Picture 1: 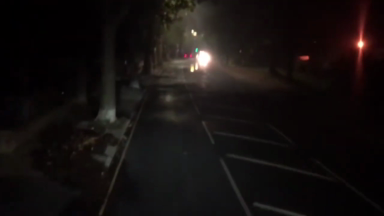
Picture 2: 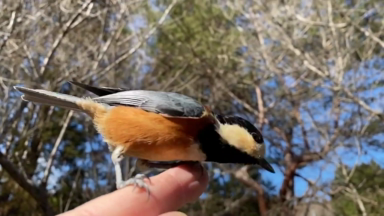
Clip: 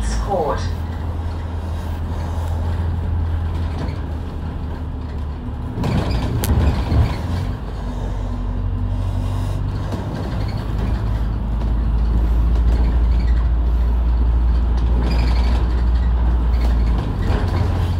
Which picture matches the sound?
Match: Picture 1